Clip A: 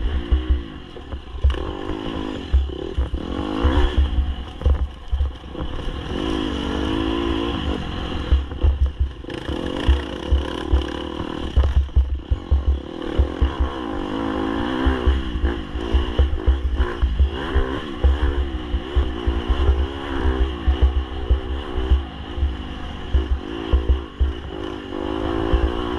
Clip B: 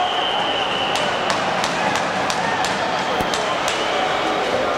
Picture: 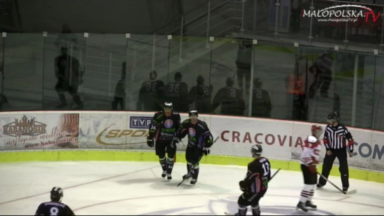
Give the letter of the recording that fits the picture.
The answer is B